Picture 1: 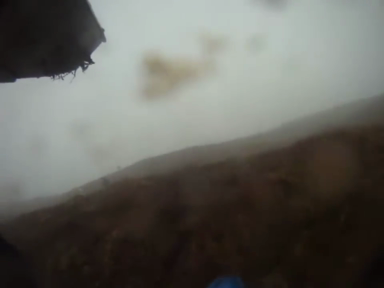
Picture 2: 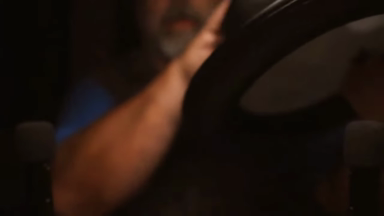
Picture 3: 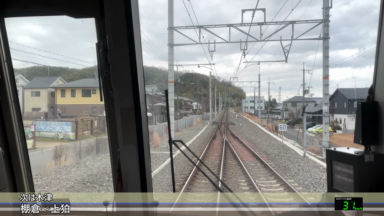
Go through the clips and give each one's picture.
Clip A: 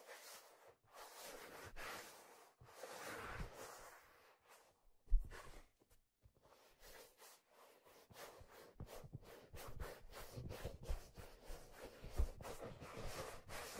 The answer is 2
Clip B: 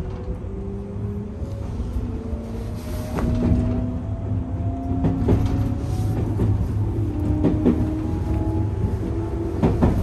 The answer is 3